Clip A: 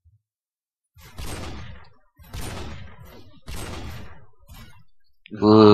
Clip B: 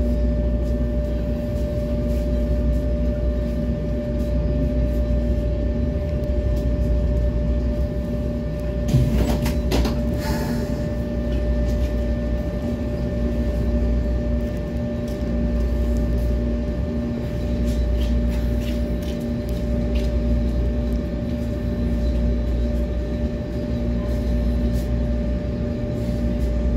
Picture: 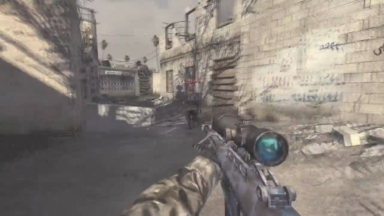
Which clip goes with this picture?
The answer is A